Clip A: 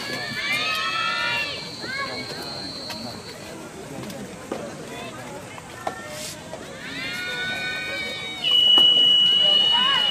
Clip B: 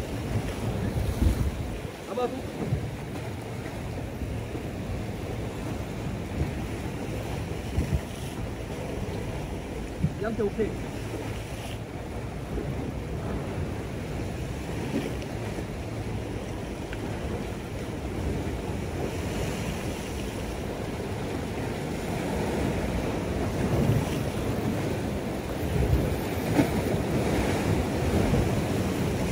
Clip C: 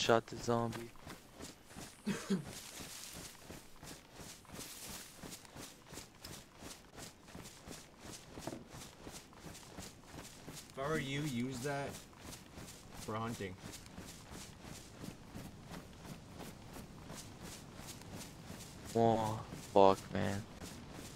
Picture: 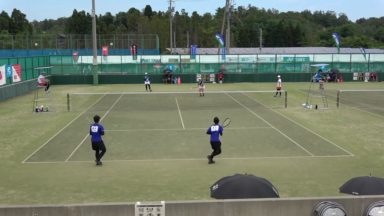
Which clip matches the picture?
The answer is A